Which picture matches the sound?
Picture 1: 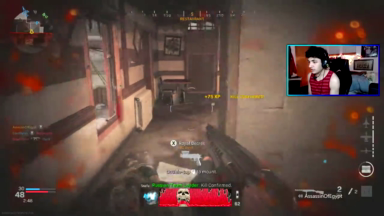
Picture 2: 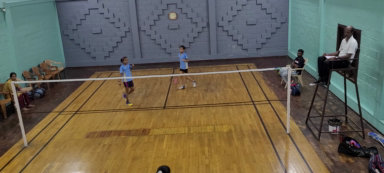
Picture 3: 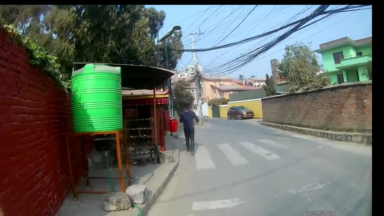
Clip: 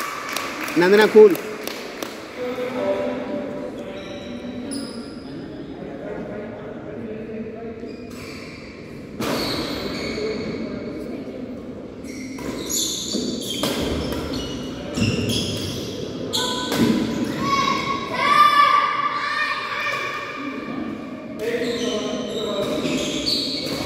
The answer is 2